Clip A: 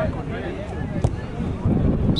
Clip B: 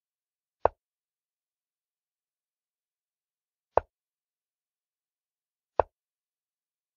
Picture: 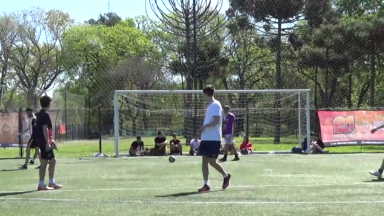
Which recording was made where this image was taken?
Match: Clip A